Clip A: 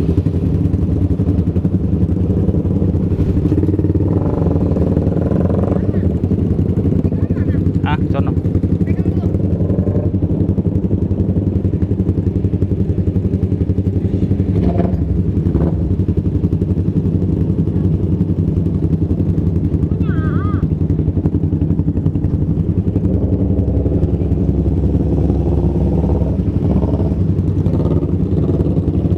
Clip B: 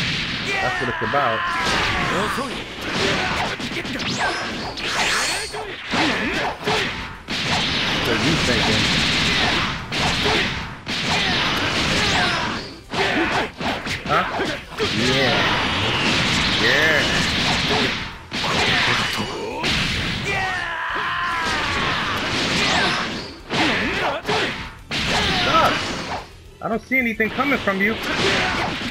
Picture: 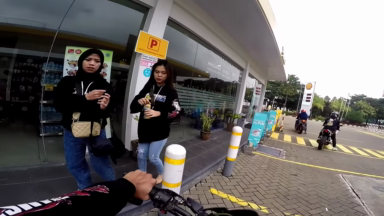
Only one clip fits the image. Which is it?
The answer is A